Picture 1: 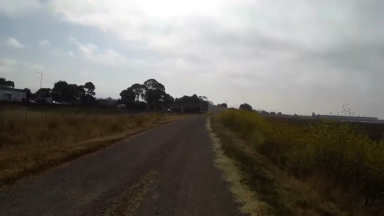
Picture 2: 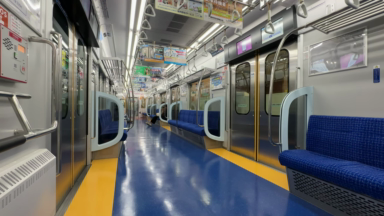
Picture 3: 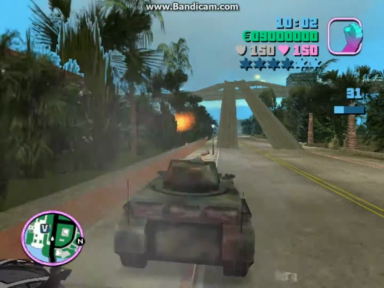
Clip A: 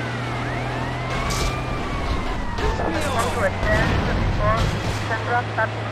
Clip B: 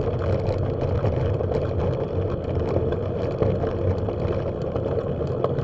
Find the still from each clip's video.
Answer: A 3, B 1